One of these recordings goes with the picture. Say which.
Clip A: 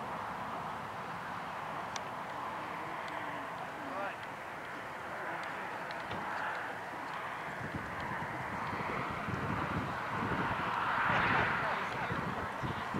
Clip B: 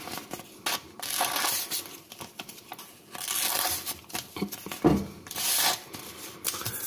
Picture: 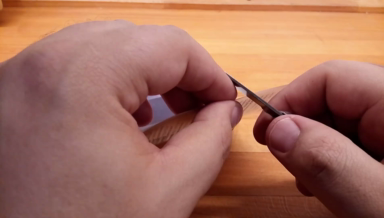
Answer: B